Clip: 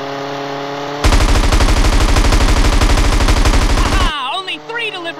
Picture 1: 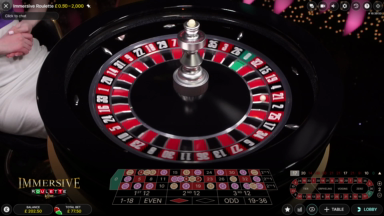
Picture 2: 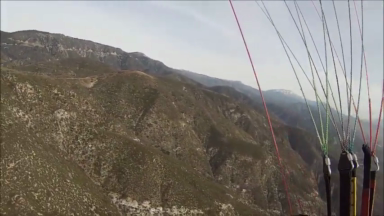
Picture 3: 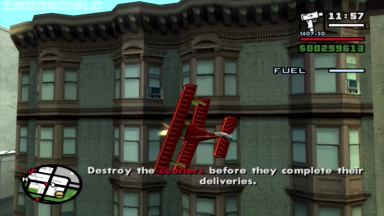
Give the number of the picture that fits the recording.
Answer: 3